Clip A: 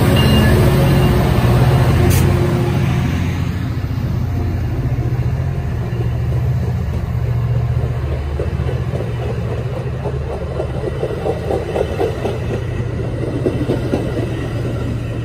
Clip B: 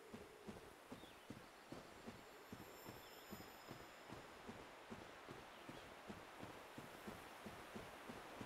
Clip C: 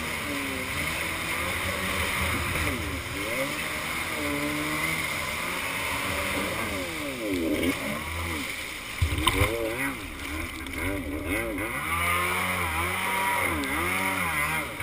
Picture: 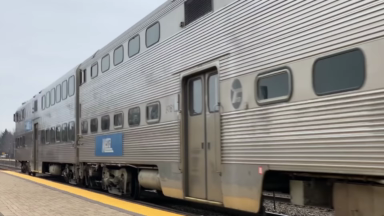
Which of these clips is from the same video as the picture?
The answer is A